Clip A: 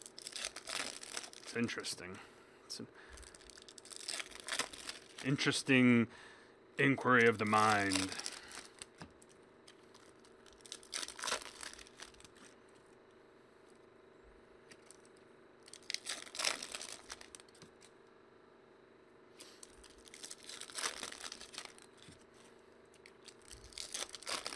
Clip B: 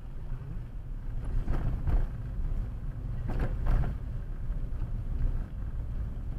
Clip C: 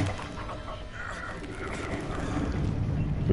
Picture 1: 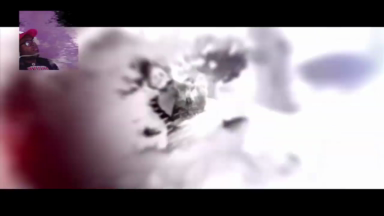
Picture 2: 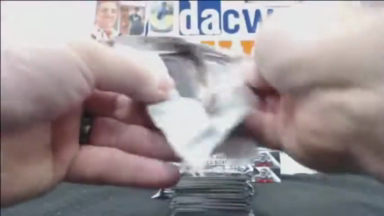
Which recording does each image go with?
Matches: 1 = C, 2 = A